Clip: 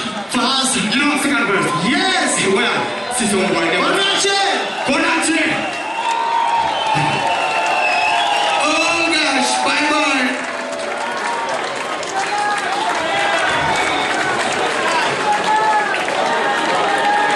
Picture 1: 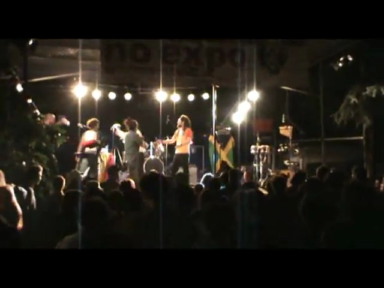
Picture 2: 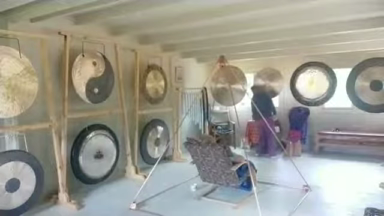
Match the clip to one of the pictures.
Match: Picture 1